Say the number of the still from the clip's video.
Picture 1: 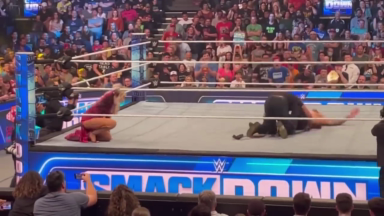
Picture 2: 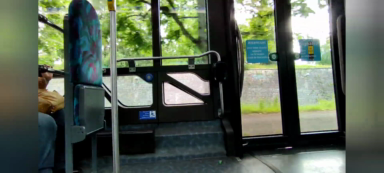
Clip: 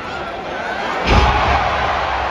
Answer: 1